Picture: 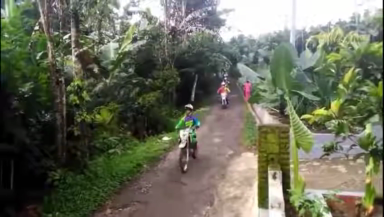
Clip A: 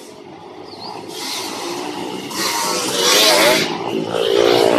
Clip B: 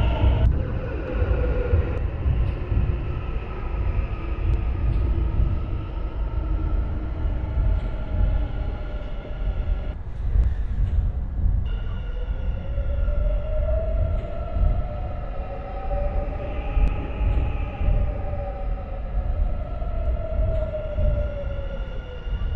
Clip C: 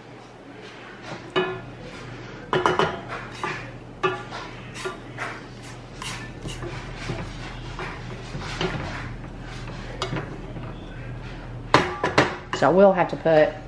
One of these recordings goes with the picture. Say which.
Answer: A